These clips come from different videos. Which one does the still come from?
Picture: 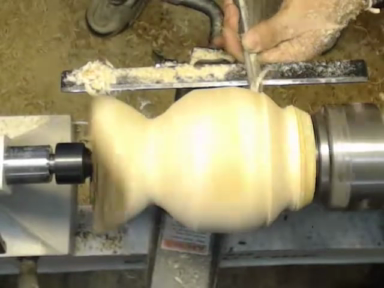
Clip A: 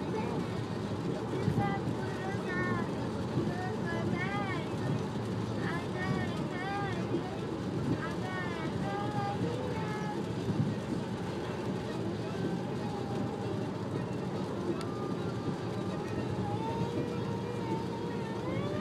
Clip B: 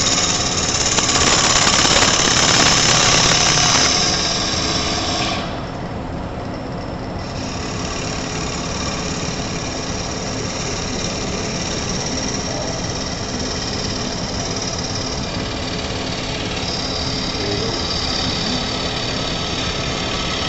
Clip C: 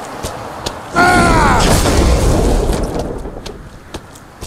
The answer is B